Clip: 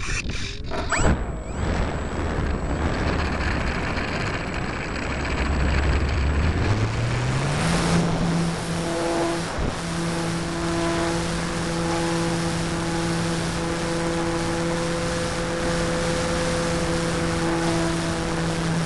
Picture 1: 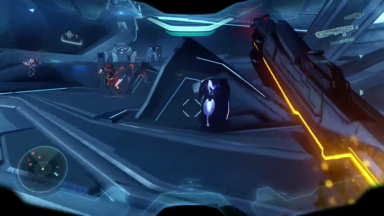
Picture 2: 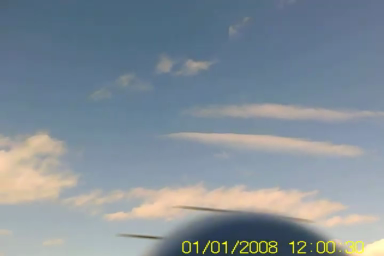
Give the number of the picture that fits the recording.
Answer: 2